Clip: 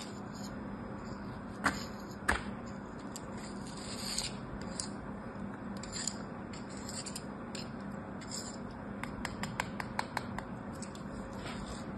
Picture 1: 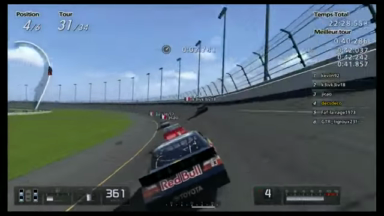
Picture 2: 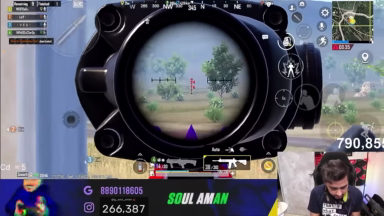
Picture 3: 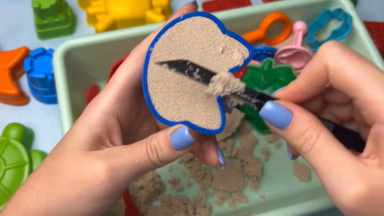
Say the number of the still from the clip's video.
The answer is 3